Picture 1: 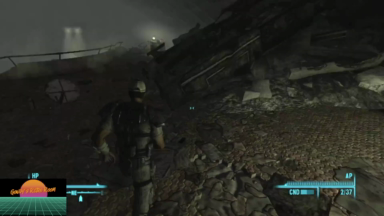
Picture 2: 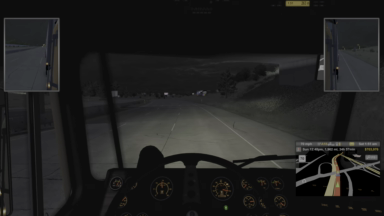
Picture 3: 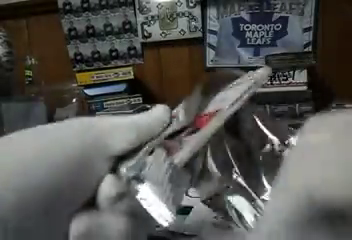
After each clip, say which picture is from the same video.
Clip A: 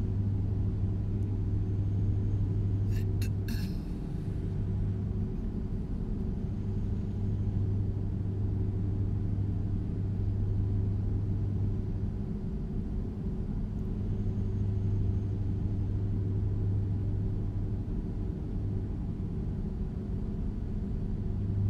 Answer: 2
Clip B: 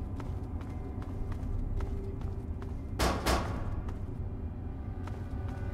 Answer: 1